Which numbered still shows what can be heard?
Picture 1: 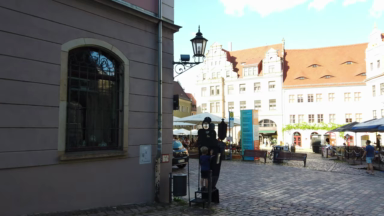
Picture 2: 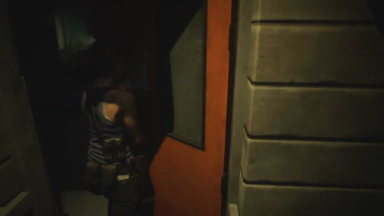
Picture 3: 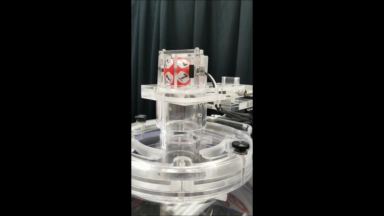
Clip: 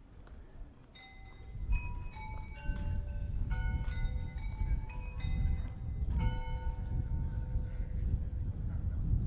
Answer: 1